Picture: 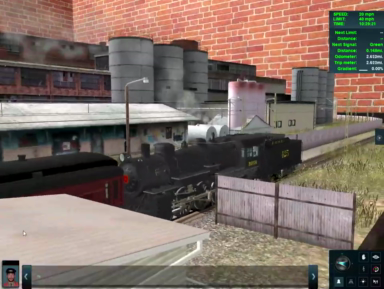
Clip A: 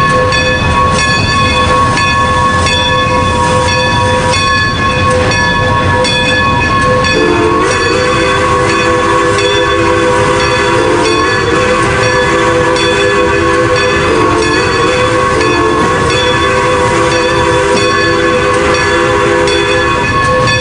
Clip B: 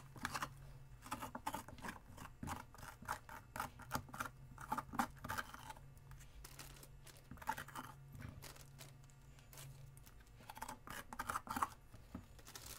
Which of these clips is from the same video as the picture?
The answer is A